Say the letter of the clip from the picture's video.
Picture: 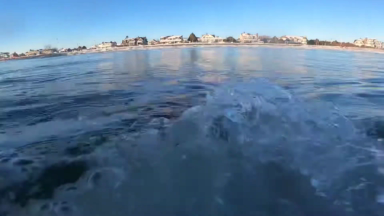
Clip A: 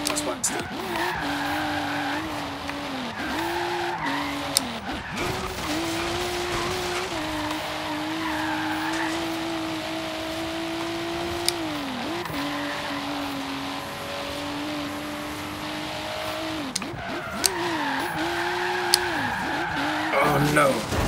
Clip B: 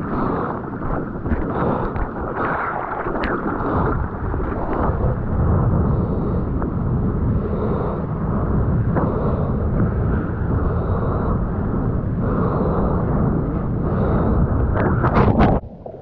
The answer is B